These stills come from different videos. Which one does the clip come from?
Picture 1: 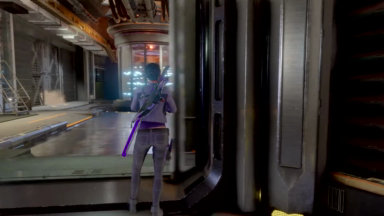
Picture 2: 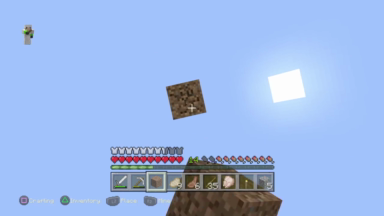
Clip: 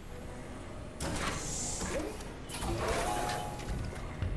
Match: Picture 1